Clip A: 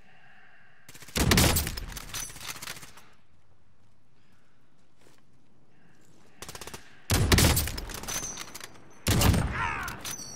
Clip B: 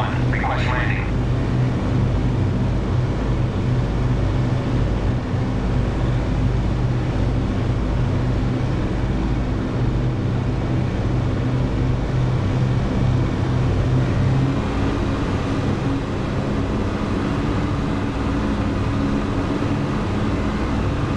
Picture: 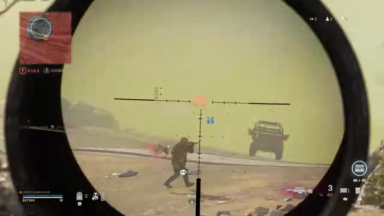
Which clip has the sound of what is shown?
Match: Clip A